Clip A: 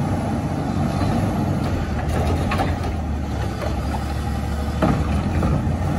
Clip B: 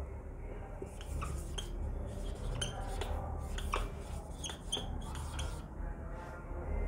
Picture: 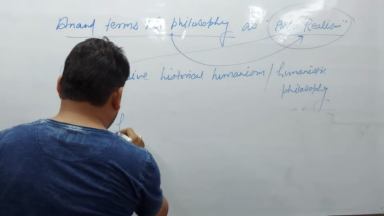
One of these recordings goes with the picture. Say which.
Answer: B